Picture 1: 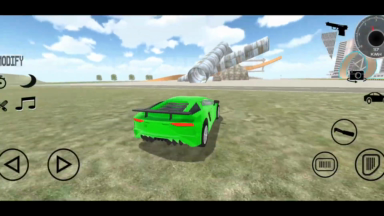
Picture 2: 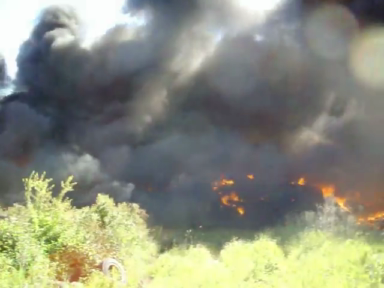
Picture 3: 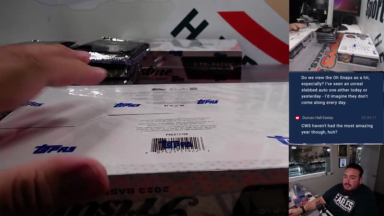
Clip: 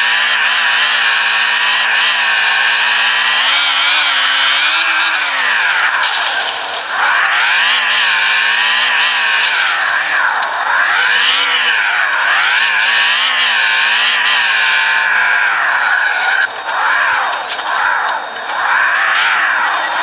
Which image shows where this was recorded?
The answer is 1